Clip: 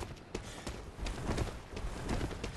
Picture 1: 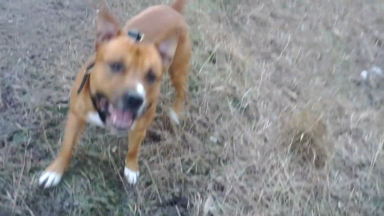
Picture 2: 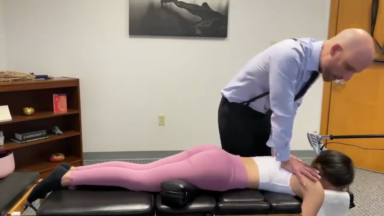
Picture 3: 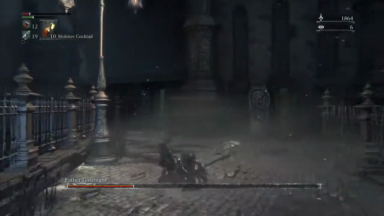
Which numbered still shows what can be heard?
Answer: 3